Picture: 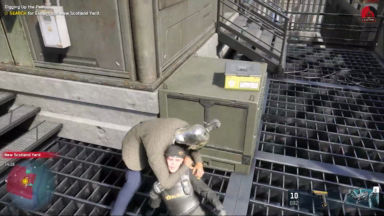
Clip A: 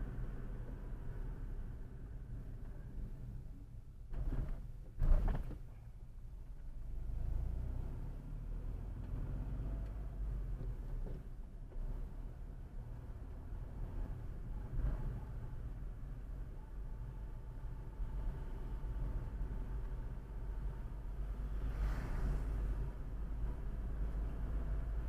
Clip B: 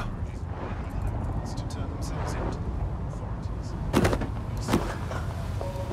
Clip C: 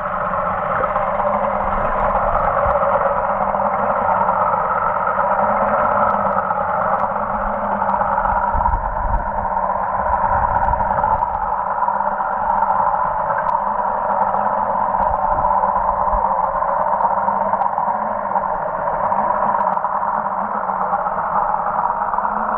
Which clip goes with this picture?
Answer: B